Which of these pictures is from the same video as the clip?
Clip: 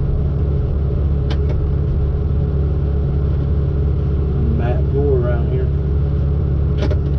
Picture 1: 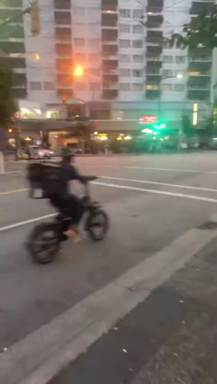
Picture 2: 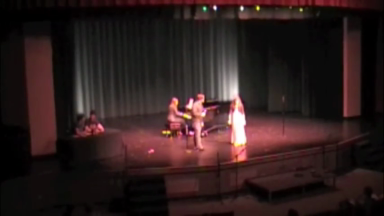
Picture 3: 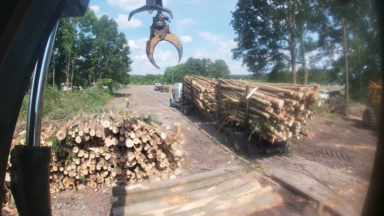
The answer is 3